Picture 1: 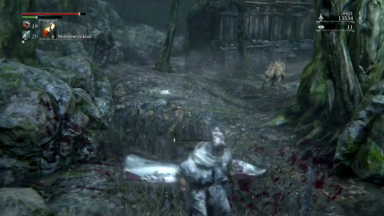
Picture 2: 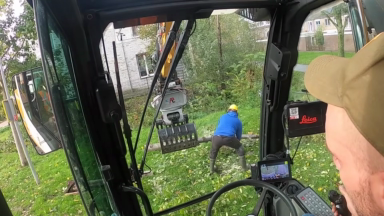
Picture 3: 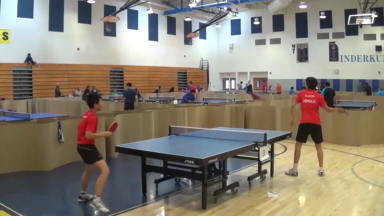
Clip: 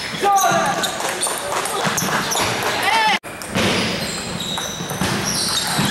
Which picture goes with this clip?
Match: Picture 3